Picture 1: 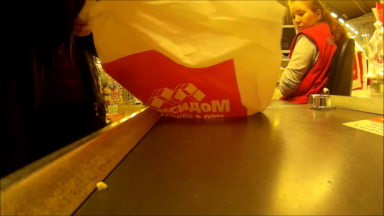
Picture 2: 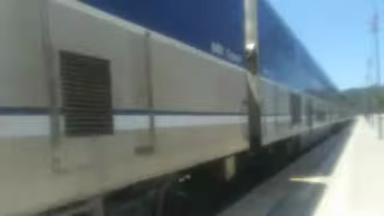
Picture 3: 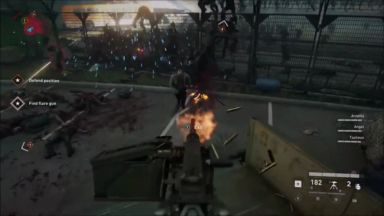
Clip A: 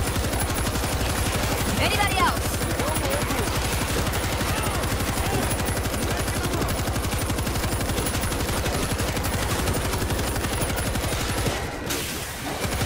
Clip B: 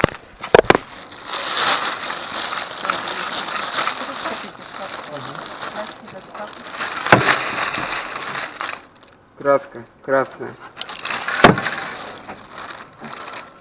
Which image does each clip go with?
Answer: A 3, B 1